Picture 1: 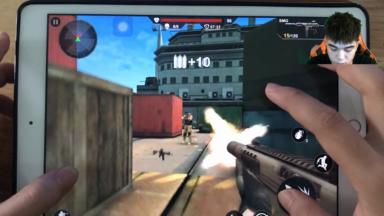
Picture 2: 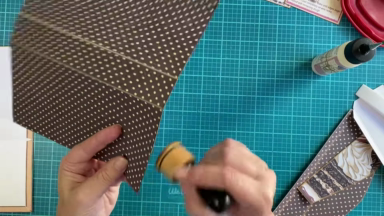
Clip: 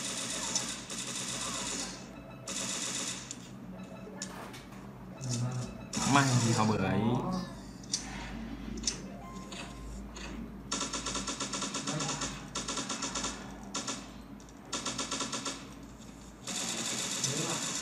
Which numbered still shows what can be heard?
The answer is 1